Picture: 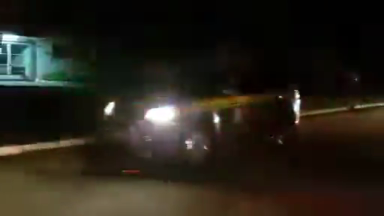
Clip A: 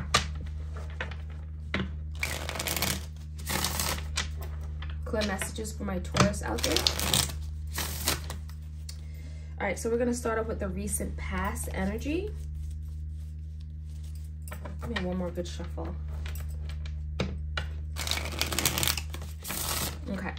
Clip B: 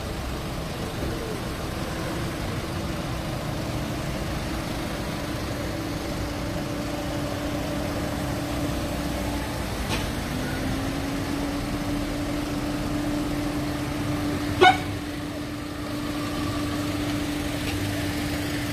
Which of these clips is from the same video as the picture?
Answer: B